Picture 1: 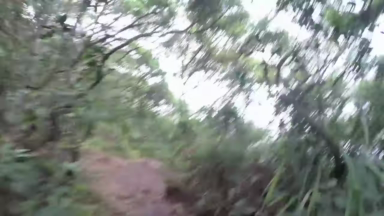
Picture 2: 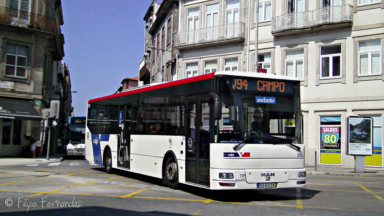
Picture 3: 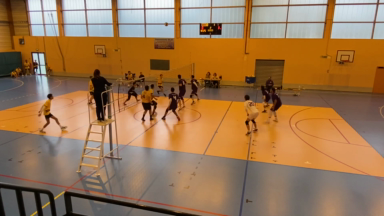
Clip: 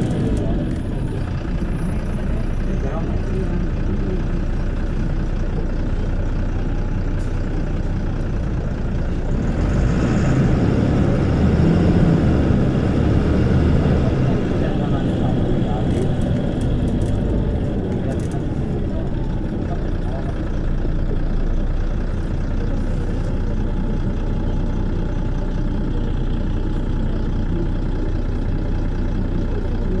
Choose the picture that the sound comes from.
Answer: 2